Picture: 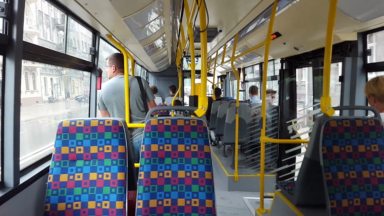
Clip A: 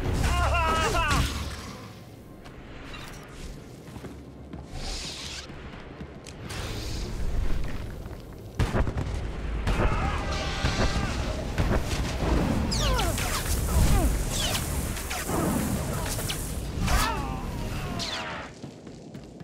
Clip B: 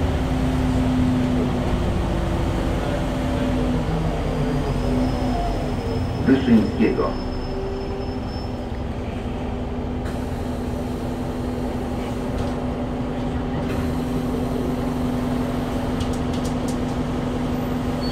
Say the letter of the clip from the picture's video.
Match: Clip B